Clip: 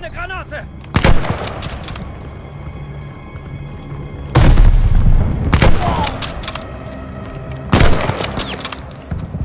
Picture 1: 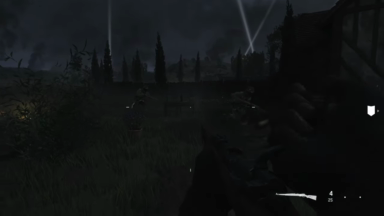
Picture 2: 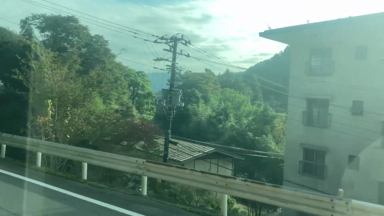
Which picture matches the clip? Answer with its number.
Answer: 1